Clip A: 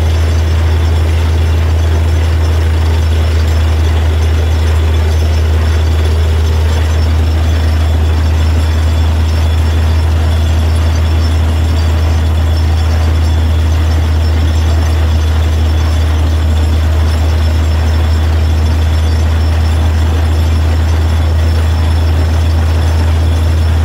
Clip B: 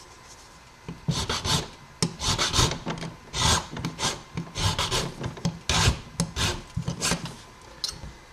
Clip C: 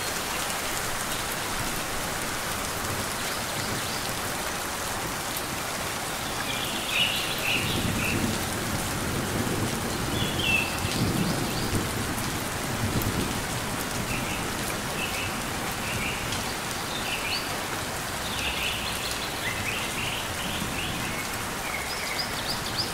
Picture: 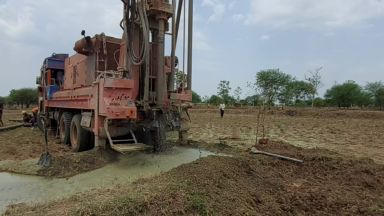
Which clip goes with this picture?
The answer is A